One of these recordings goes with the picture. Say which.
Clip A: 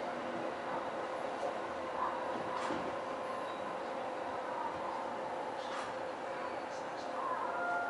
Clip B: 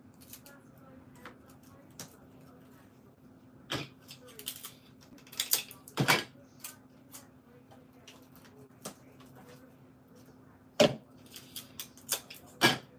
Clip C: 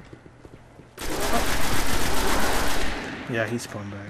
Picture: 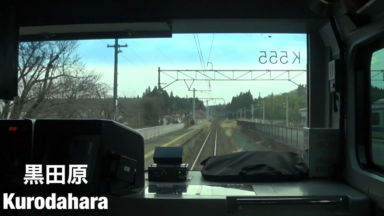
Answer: A